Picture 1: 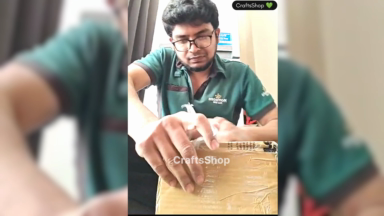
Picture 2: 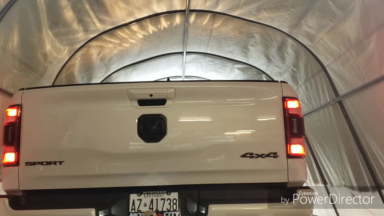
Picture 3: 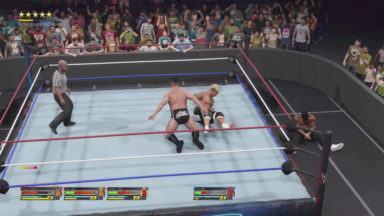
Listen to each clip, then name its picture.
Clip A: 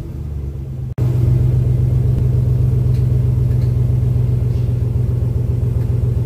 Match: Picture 2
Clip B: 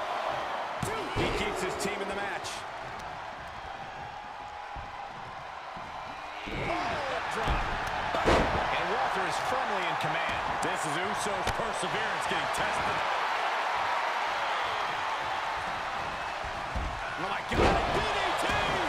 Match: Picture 3